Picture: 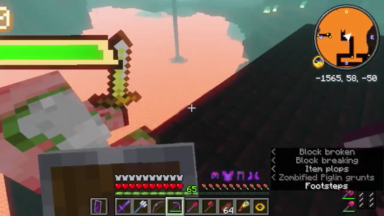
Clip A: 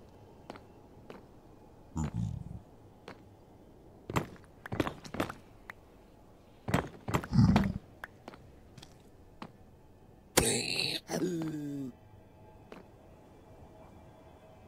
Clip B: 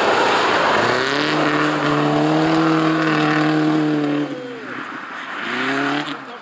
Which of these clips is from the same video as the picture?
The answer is A